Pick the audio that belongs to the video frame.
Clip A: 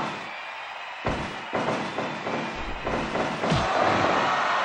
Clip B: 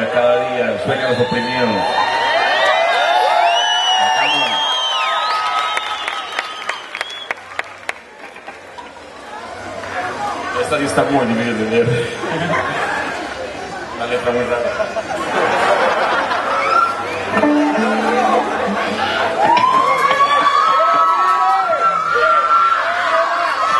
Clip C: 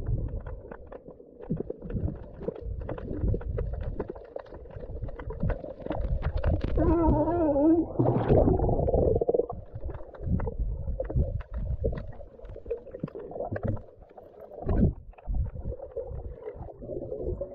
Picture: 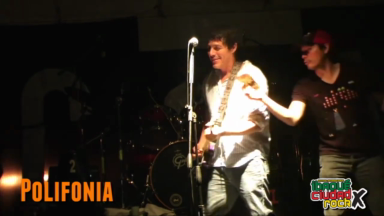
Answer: B